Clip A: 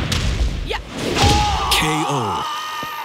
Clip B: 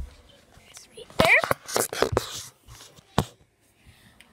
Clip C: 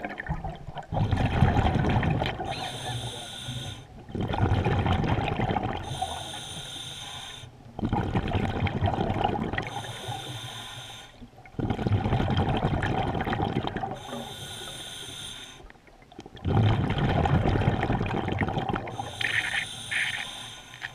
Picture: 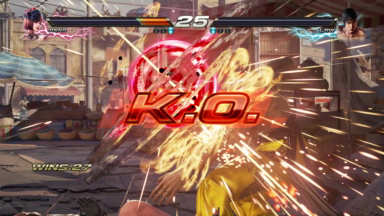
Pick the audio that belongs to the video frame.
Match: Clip A